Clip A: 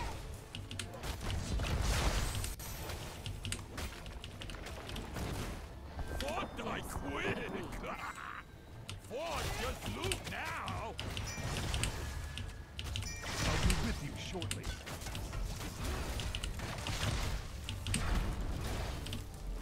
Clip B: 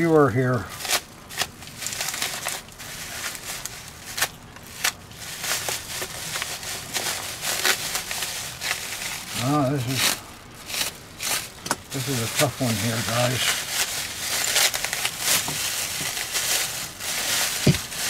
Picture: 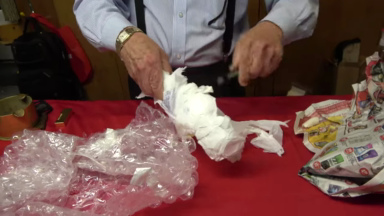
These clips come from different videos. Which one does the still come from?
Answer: B